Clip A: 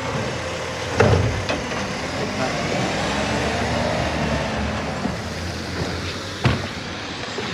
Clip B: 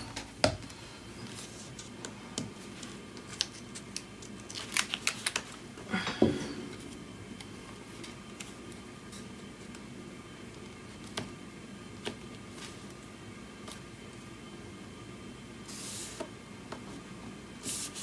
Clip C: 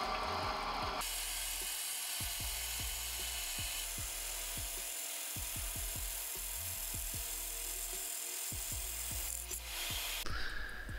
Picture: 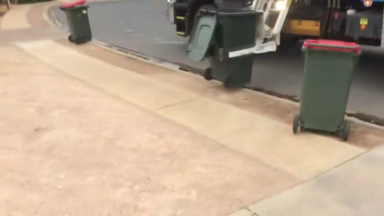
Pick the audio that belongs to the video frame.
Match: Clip A